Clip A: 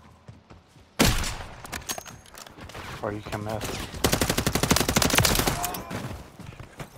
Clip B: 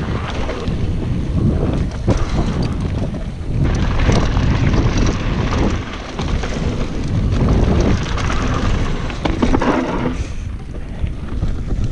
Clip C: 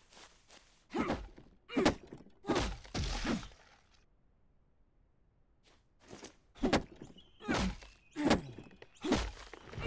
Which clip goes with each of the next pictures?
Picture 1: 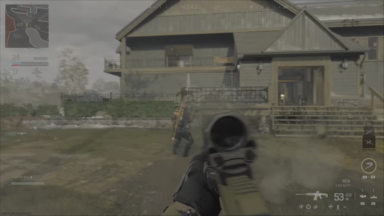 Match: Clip A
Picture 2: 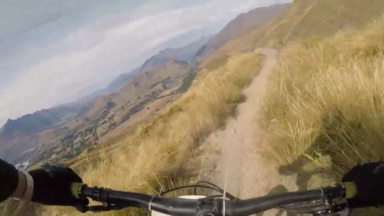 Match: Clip B